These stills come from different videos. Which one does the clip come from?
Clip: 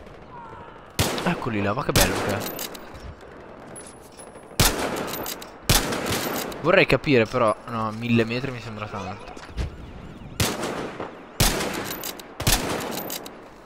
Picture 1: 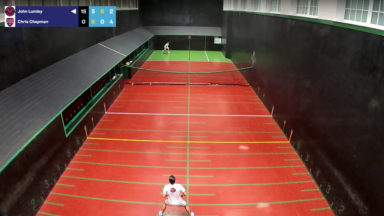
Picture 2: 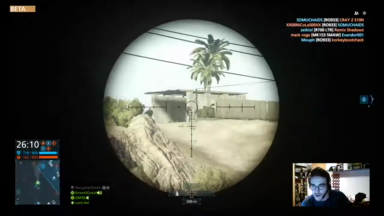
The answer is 2